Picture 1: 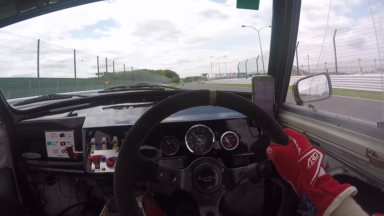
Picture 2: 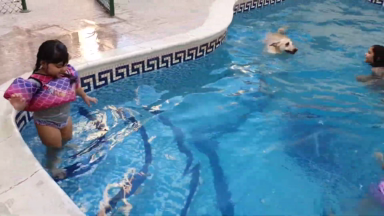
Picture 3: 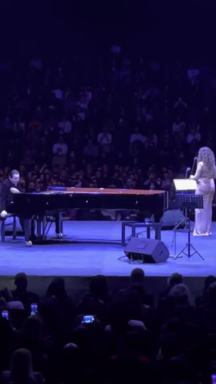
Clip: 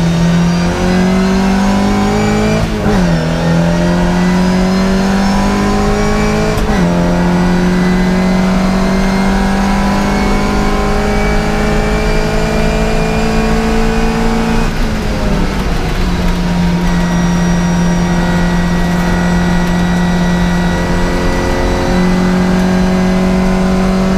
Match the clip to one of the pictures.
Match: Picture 1